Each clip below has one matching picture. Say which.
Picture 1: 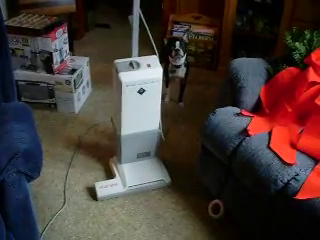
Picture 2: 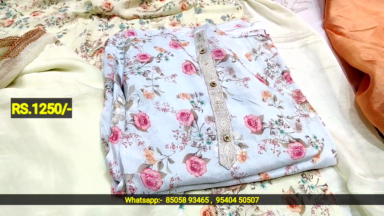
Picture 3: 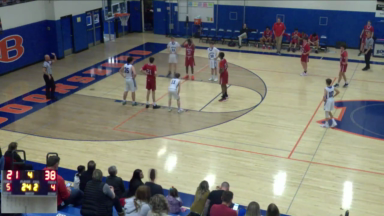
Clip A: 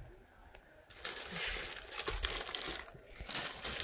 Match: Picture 2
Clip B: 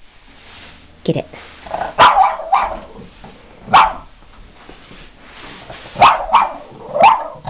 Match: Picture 1